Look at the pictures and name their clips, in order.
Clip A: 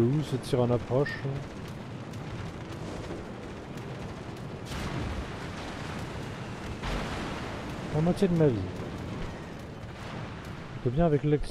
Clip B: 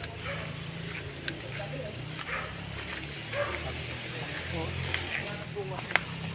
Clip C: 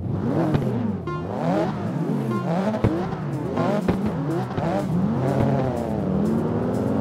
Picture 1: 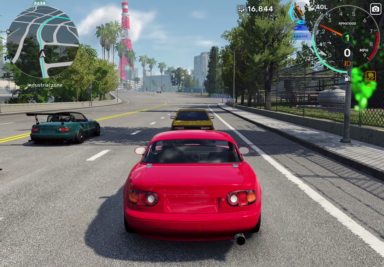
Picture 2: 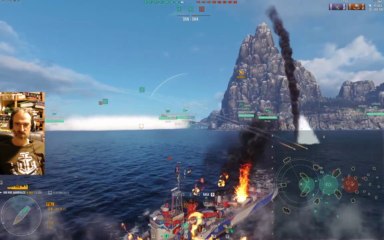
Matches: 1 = C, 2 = A